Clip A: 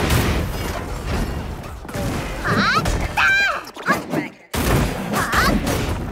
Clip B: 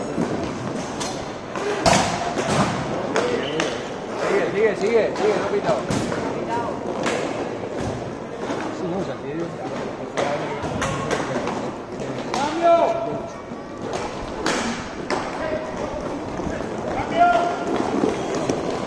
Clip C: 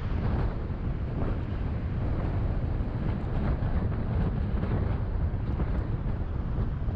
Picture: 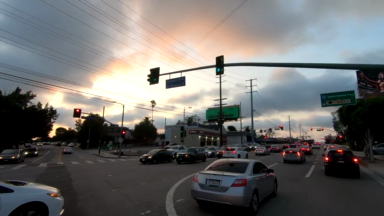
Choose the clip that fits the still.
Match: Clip C